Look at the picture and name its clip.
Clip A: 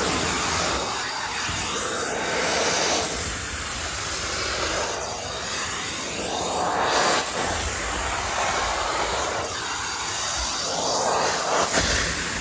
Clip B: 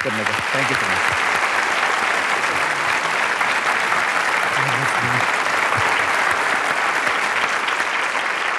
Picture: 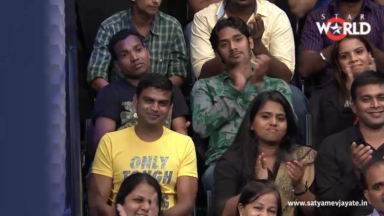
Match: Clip B